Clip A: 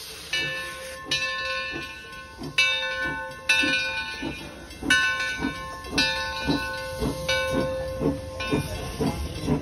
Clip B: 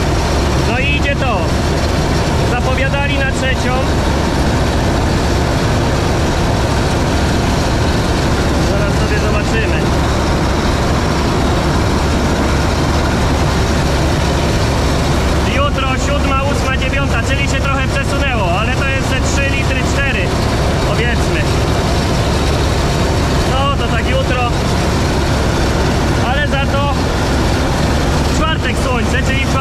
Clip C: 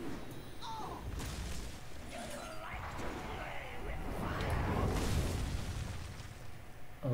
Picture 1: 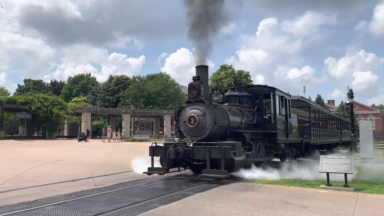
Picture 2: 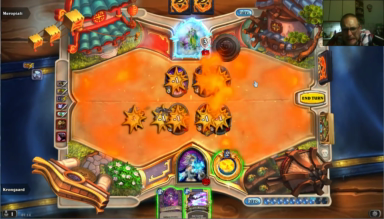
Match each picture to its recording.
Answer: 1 A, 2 C